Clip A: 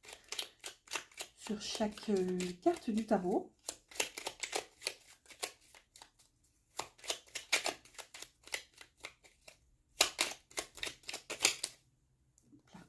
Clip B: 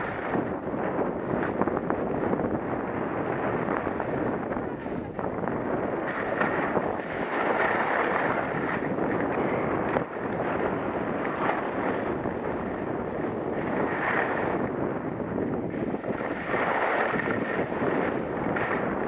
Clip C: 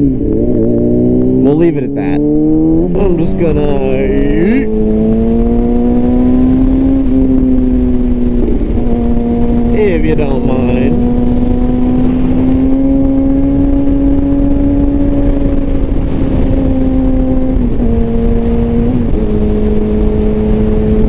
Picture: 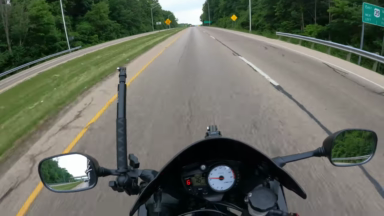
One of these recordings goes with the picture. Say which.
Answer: C